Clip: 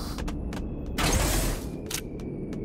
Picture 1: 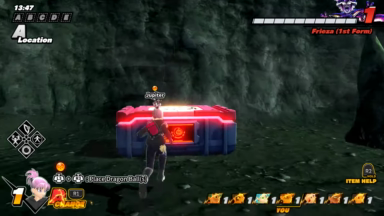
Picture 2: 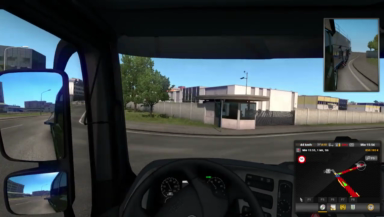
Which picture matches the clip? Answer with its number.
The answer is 1